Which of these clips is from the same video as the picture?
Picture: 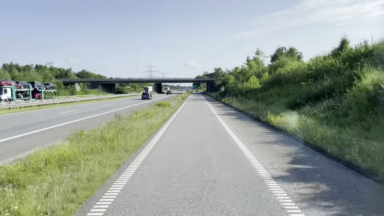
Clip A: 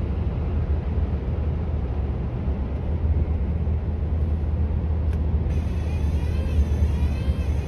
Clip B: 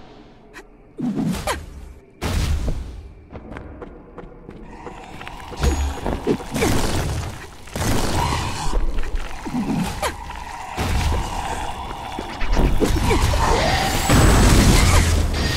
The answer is A